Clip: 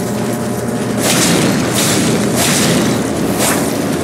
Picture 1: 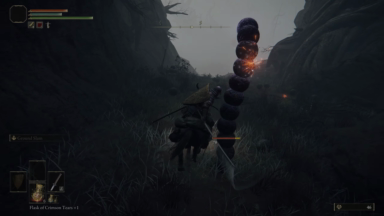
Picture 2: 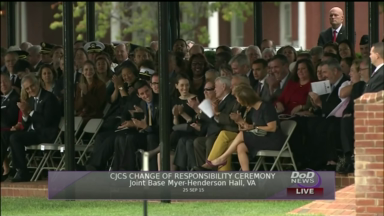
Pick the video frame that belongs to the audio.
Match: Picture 1